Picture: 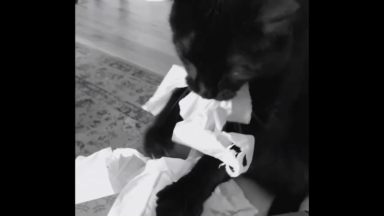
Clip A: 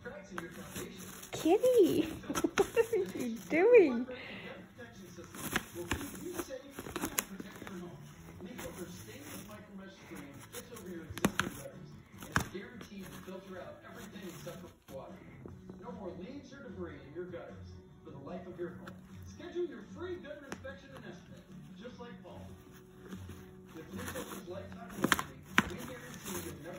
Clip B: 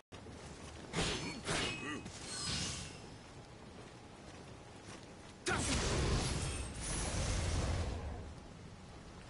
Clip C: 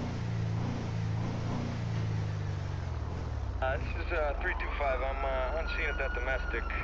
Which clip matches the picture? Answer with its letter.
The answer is A